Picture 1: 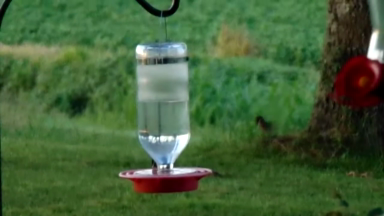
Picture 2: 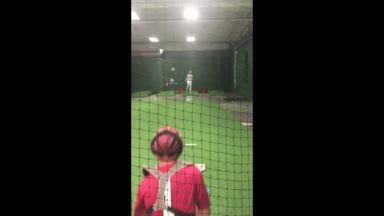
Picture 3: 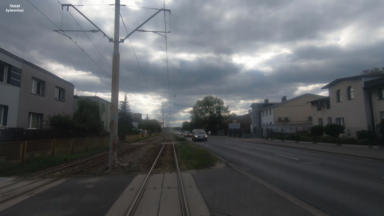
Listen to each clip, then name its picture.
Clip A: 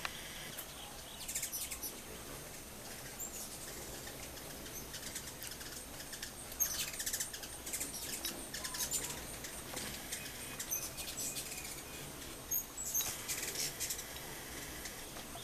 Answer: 1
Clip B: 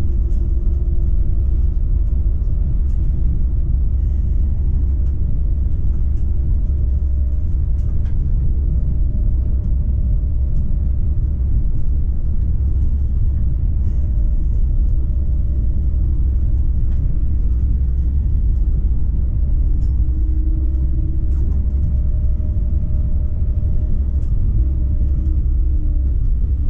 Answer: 3